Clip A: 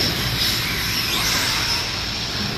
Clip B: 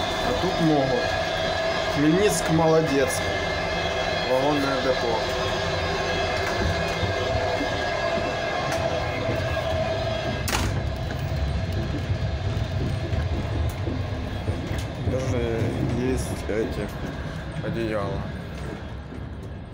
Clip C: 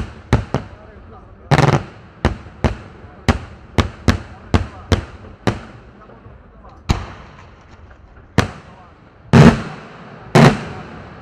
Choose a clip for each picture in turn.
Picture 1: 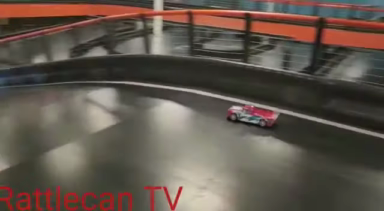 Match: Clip A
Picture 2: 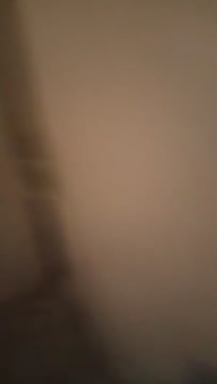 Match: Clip B